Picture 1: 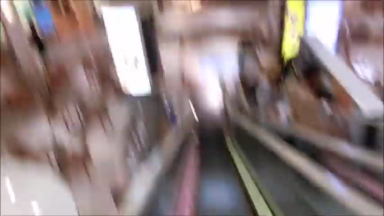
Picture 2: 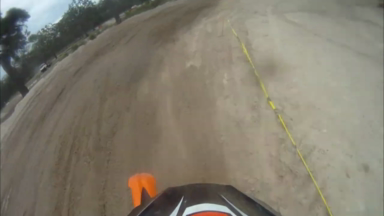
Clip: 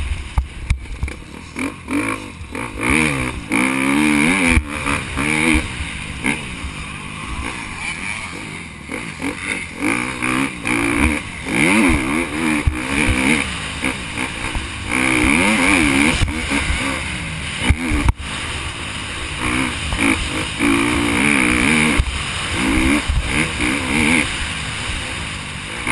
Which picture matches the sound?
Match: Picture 2